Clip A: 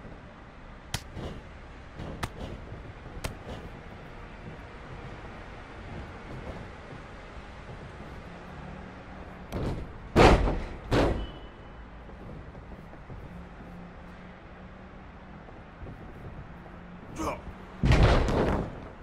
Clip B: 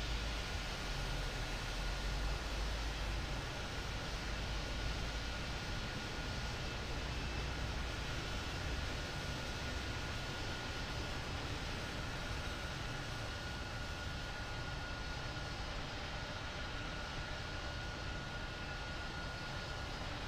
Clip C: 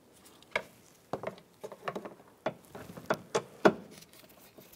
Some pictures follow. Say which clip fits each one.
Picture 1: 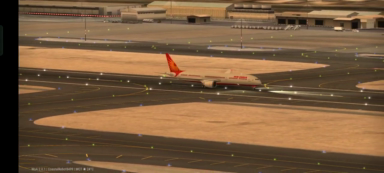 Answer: B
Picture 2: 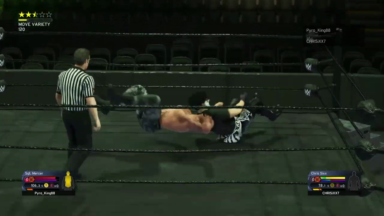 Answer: A